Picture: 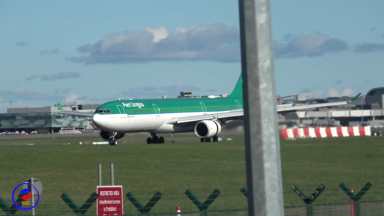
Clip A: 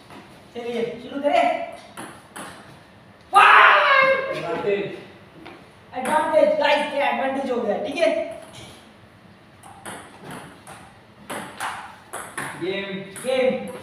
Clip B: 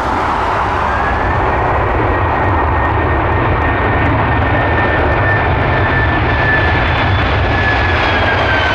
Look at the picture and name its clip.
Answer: B